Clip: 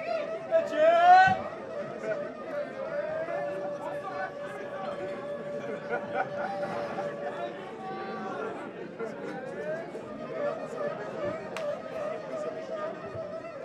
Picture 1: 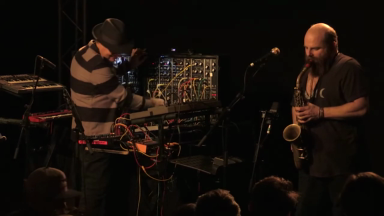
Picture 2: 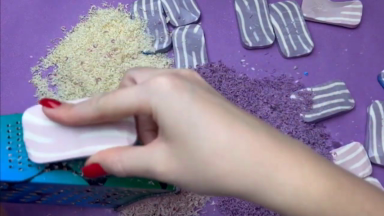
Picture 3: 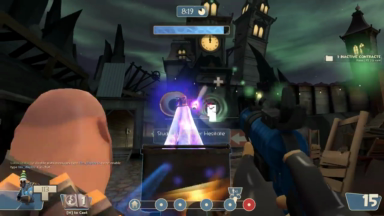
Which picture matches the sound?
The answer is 1